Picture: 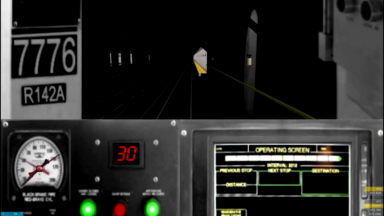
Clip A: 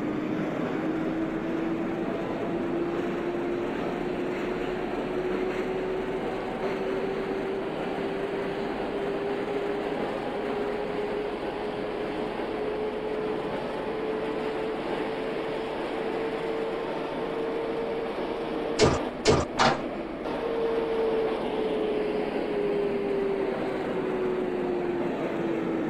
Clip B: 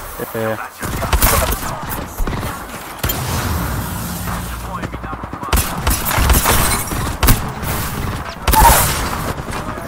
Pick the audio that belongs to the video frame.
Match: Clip A